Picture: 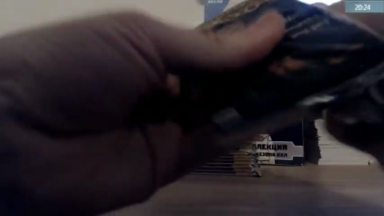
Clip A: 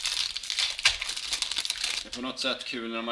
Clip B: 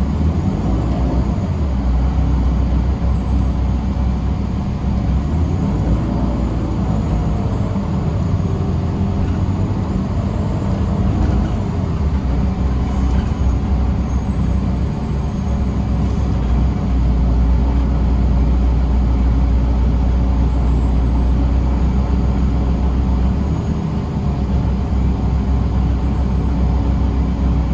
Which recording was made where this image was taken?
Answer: A